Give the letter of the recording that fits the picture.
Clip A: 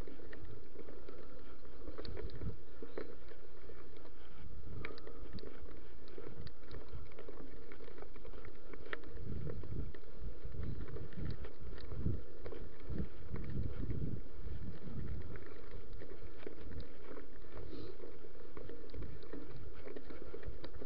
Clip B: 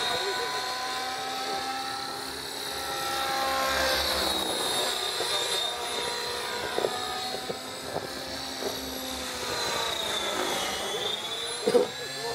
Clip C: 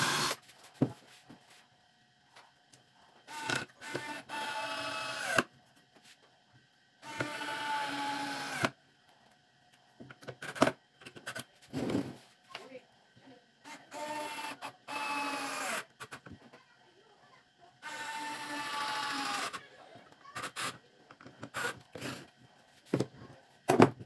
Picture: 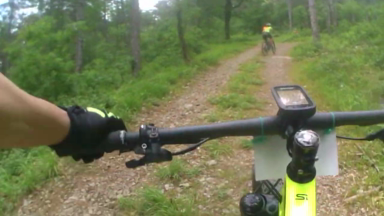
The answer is A